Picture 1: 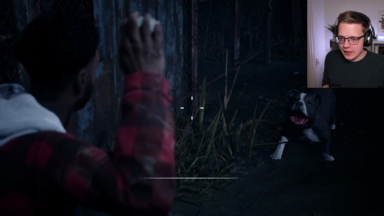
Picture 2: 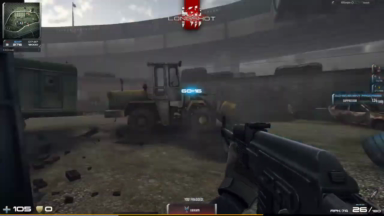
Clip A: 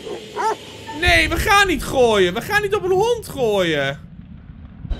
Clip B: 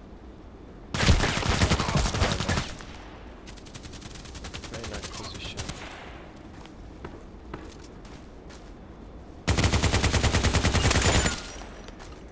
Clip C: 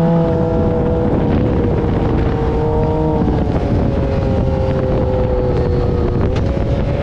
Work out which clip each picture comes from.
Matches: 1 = A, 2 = B